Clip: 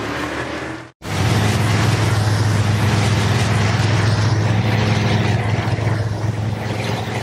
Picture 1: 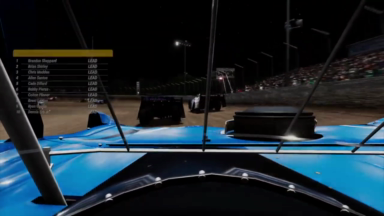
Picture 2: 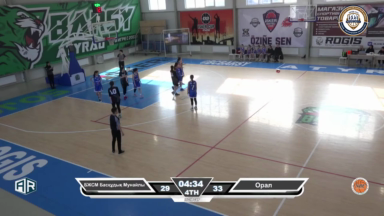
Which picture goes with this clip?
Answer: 1